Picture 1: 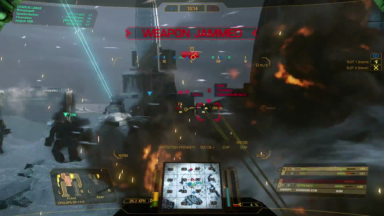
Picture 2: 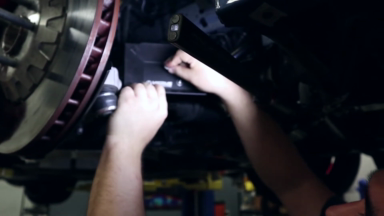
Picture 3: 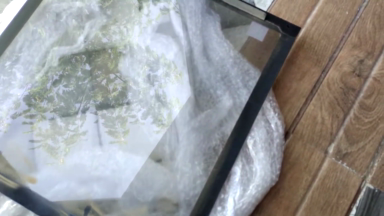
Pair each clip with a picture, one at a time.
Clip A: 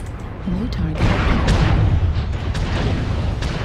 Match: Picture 1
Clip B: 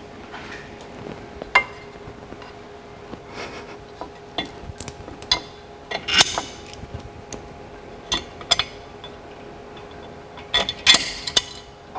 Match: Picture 2